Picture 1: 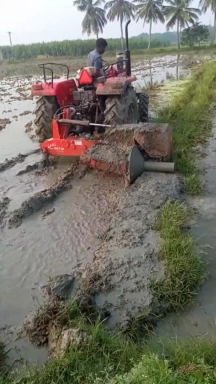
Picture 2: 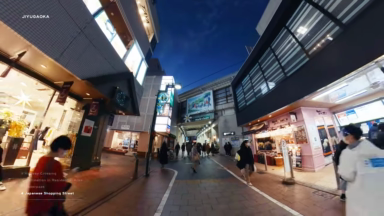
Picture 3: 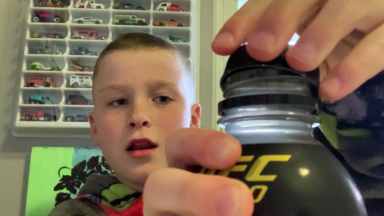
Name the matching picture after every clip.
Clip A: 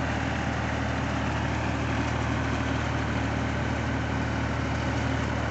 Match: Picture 1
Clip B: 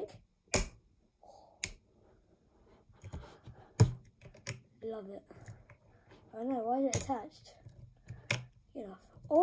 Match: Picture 3